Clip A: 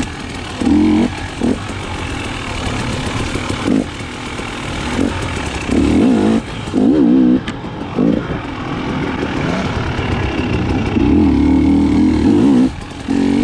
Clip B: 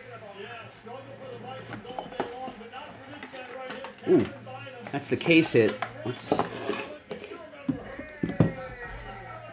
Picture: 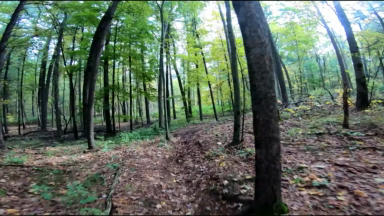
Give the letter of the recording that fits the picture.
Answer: A